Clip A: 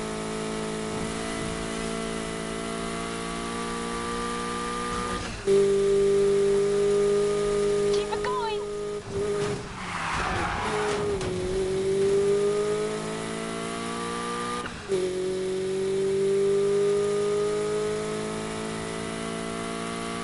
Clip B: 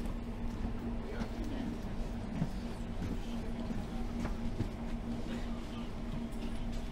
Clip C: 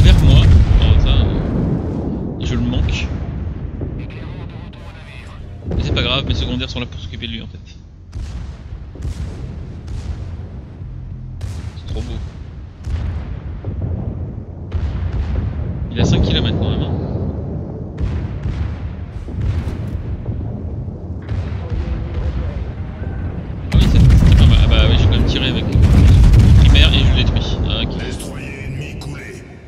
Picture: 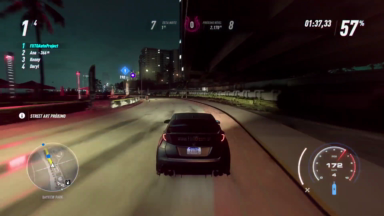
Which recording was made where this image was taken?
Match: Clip A